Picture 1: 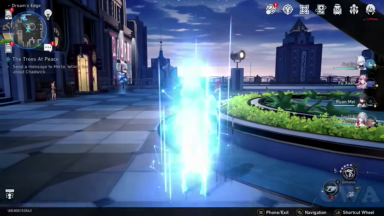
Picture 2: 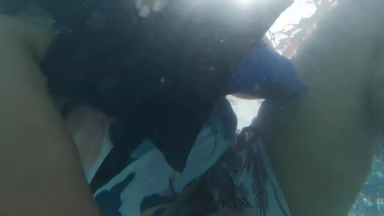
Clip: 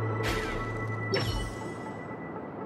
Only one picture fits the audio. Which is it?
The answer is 1